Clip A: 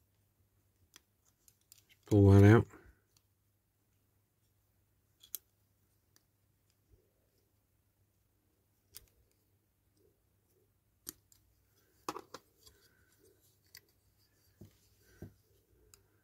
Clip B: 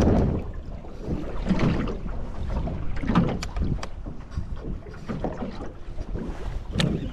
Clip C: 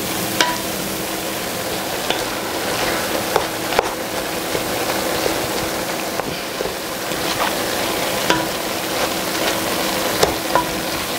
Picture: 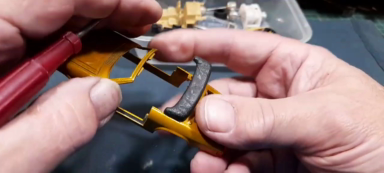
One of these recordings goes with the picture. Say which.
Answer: A